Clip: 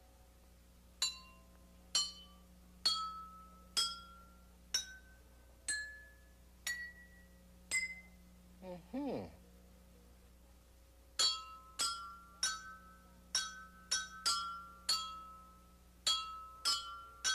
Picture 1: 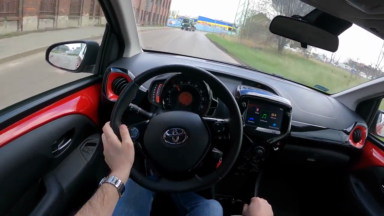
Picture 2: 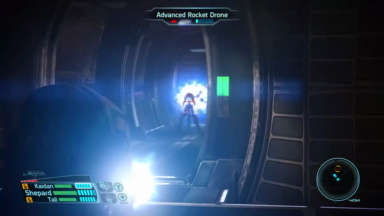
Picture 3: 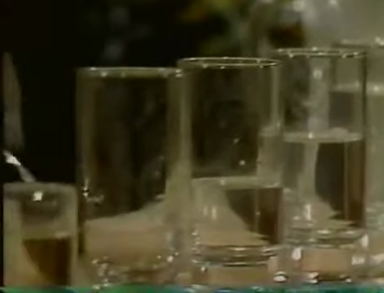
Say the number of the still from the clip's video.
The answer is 3